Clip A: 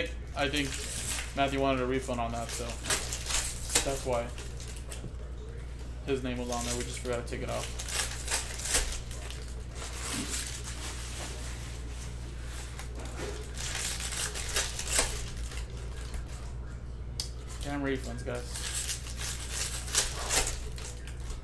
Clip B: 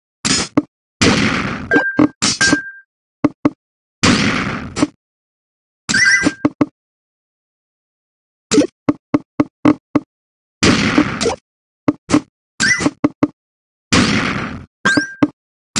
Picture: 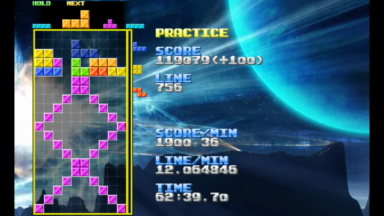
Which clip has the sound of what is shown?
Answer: B